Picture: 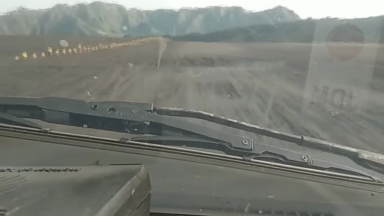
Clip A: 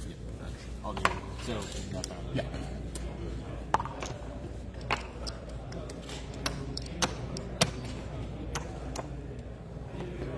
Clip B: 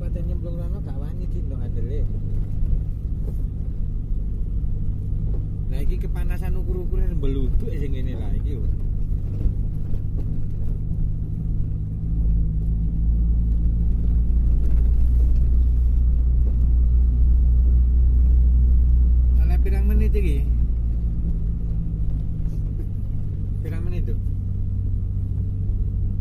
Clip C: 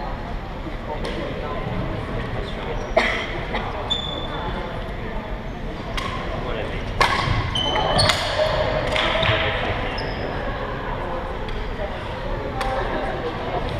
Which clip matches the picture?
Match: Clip B